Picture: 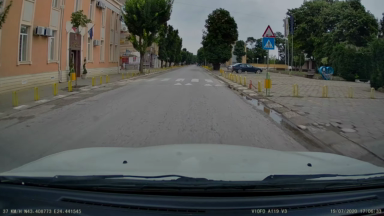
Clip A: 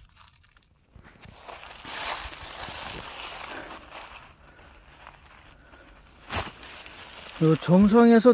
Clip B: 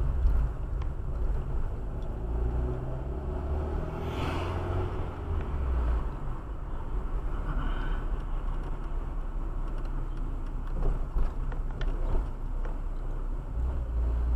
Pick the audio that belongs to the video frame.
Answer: B